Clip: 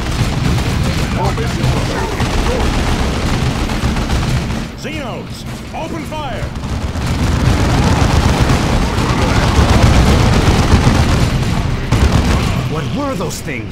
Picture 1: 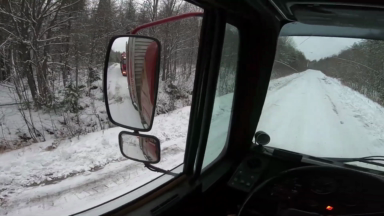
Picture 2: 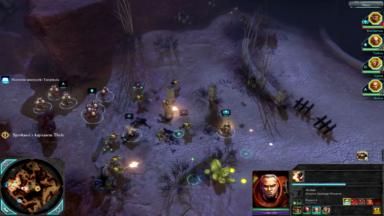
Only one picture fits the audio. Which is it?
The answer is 2